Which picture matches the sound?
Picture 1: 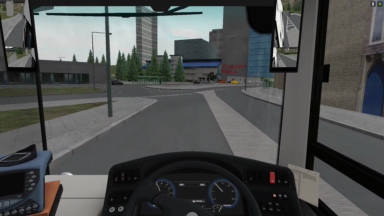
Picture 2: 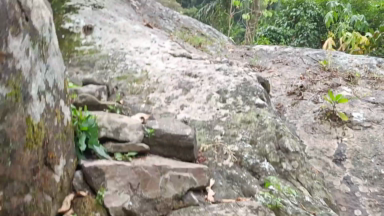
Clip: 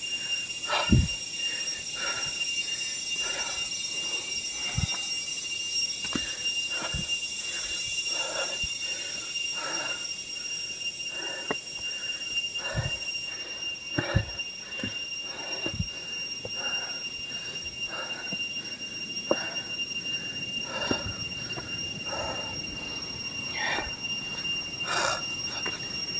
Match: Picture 2